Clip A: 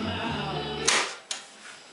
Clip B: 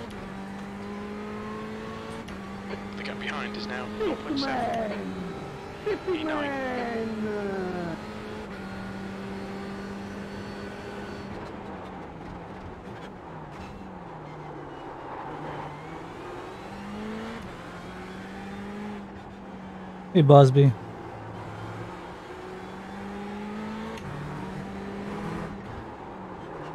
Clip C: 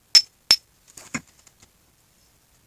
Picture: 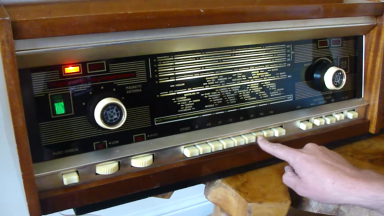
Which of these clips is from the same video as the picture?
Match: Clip A